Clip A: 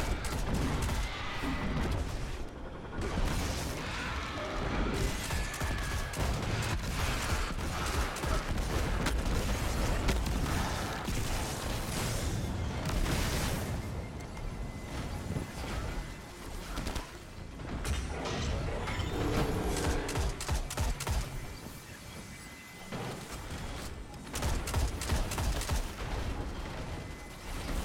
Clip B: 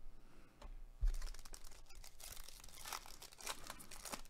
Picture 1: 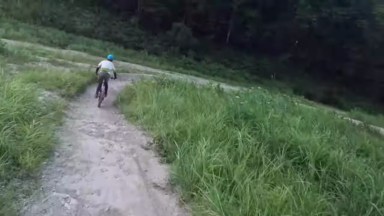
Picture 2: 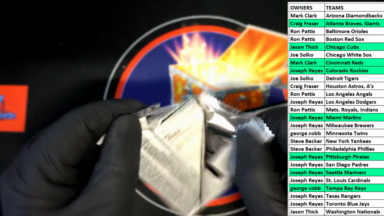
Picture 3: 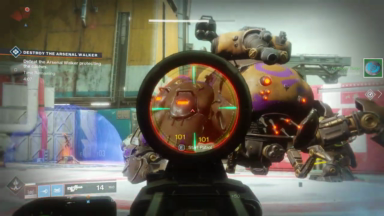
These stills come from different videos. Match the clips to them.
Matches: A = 3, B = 2